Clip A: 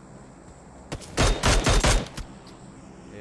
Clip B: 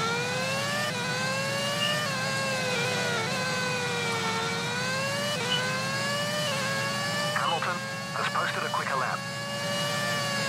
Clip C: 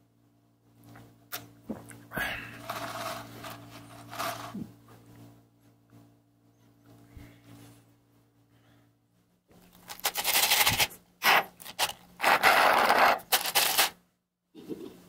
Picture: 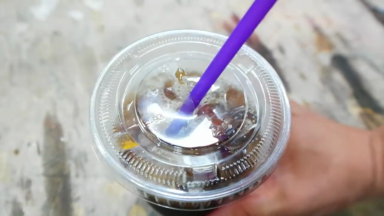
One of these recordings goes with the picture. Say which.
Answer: C